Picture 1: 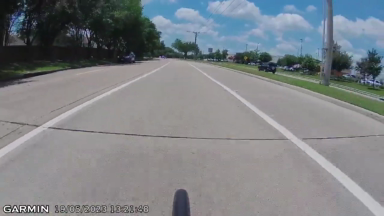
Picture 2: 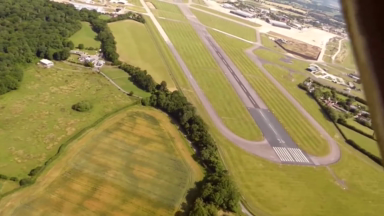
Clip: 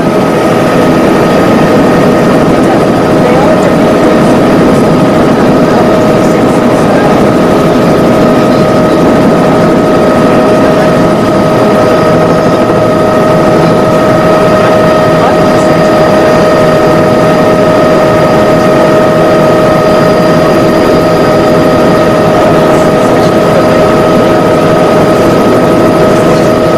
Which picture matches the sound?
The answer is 2